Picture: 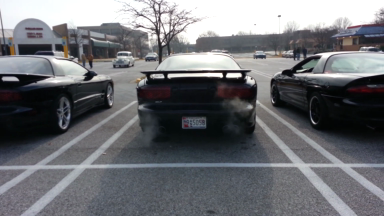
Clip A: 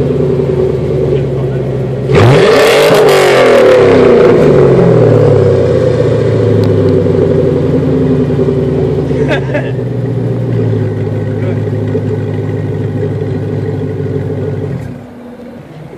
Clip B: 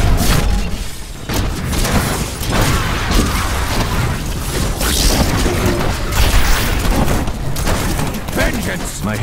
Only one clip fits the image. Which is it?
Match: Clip A